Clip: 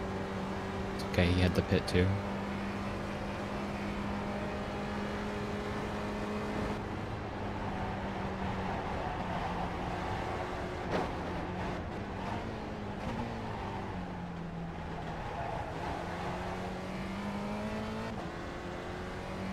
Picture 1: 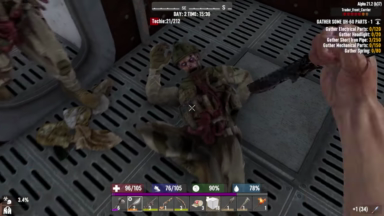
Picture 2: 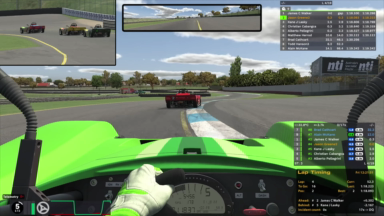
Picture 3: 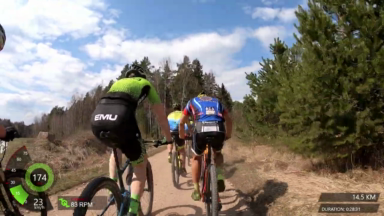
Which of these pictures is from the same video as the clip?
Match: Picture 2